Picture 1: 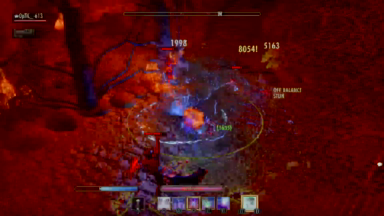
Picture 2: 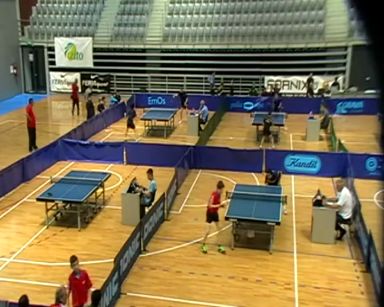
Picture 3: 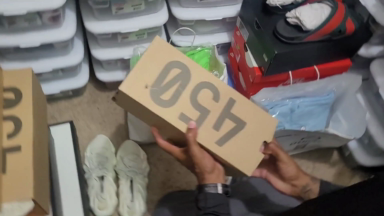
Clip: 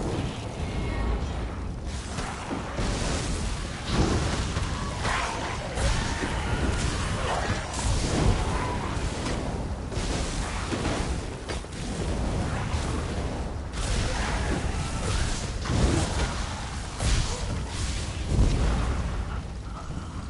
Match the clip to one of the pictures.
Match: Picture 1